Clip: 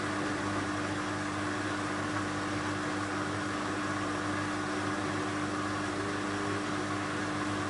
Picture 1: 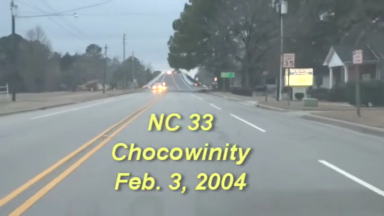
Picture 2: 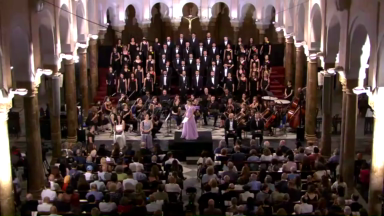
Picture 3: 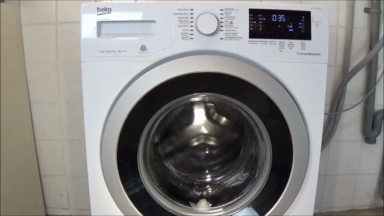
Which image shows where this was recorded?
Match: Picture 3